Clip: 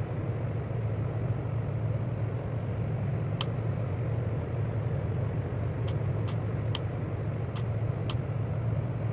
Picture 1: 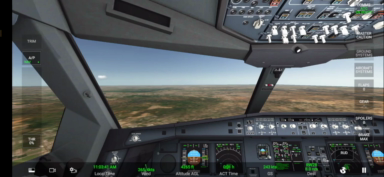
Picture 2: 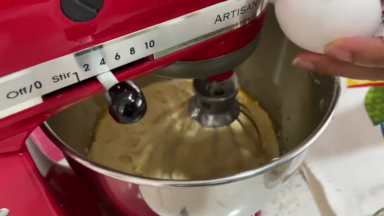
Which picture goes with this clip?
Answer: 1